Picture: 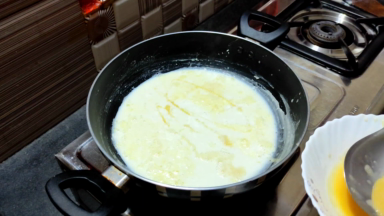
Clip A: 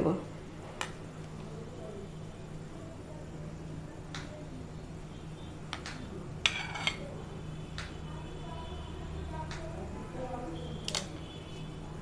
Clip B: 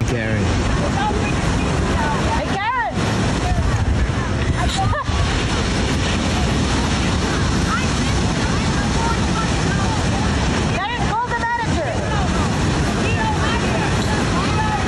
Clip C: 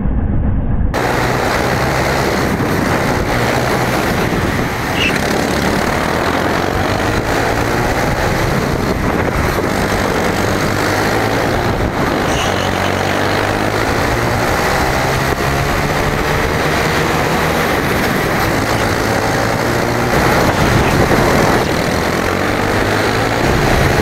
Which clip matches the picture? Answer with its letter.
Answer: A